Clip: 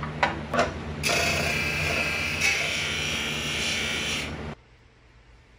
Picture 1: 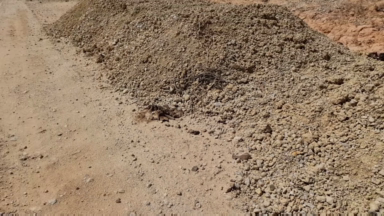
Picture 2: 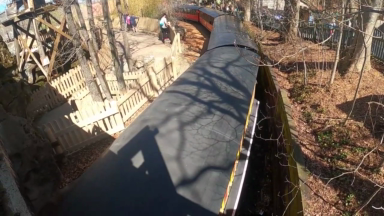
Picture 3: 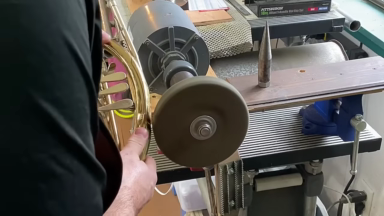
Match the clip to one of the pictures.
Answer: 3